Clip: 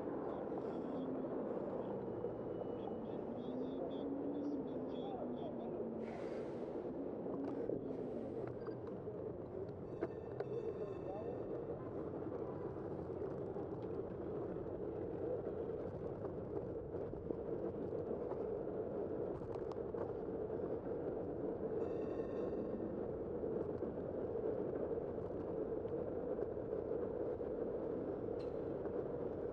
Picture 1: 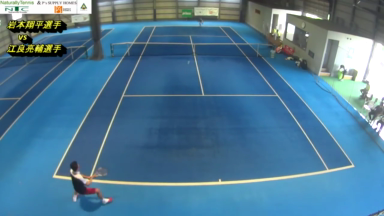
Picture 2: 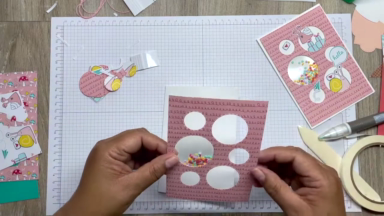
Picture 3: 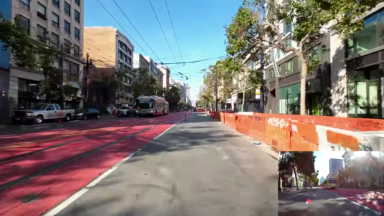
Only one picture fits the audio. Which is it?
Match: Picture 3